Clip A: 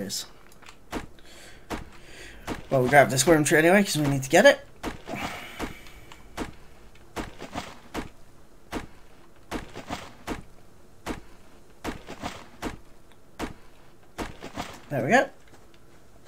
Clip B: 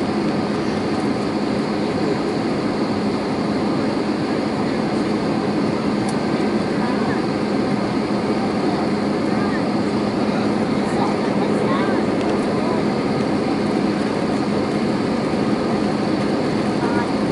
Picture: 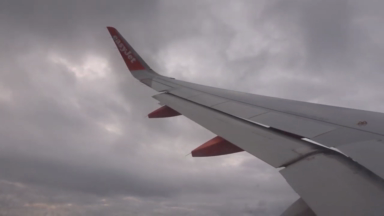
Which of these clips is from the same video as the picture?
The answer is B